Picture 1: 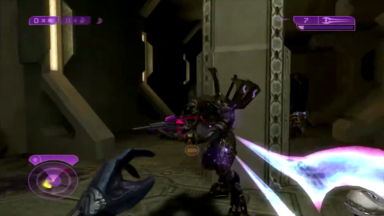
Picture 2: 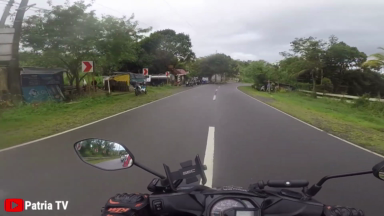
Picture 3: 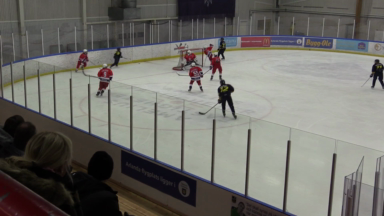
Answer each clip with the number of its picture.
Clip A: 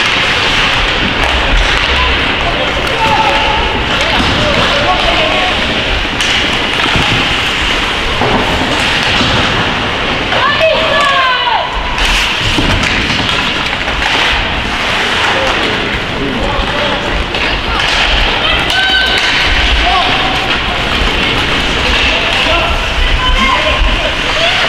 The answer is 3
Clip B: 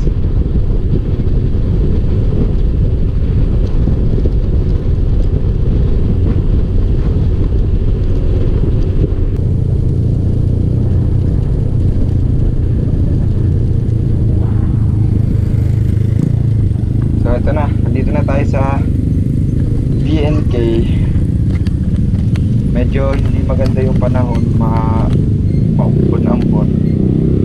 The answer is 2